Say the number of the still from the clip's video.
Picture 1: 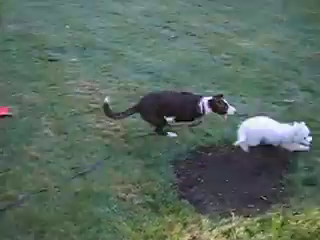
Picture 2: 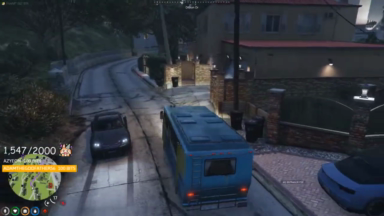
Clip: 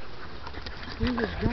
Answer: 1